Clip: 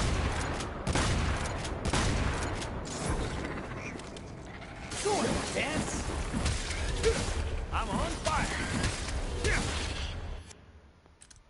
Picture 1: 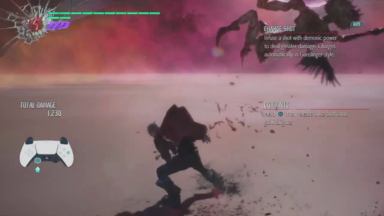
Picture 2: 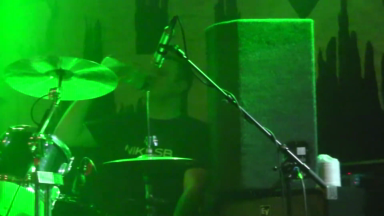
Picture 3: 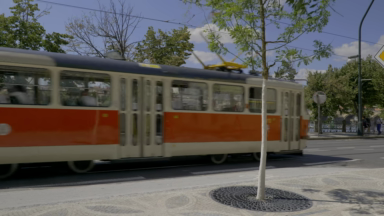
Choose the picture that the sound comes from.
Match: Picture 1